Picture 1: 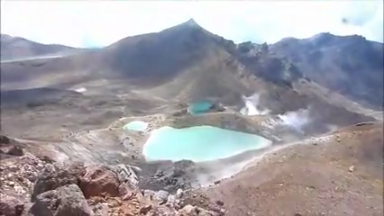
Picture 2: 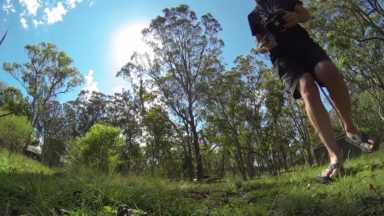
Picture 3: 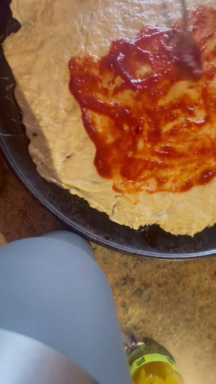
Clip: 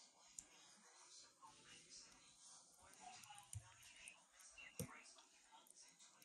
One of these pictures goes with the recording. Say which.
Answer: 3